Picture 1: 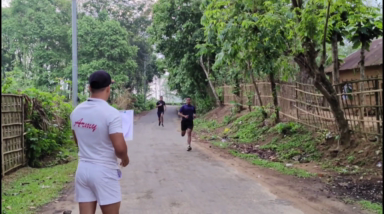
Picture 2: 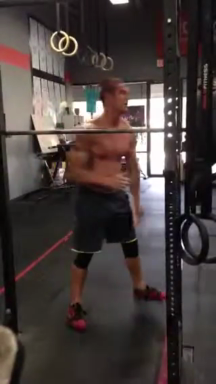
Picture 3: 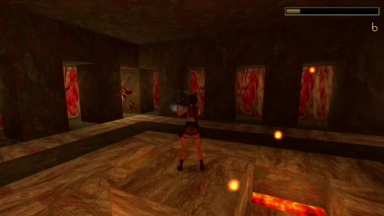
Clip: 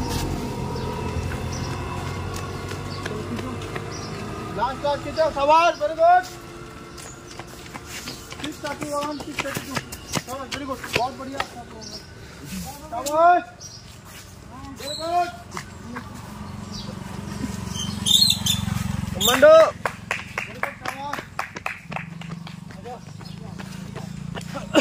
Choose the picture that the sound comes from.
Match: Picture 1